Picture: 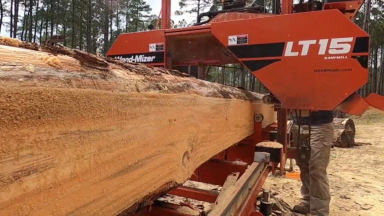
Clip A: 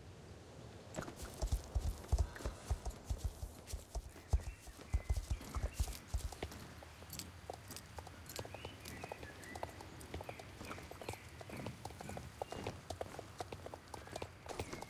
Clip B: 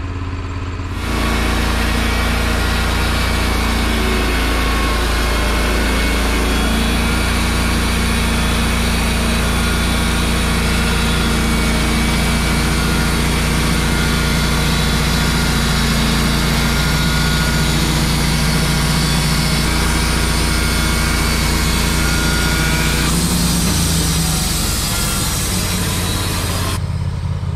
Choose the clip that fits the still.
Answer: B